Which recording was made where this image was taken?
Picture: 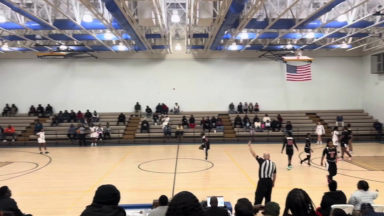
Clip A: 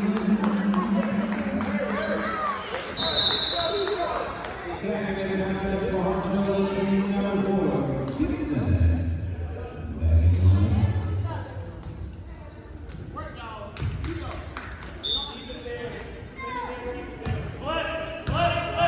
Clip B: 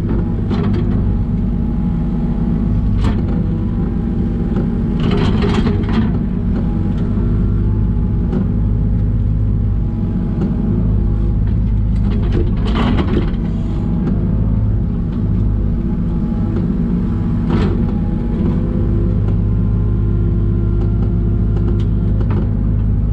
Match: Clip A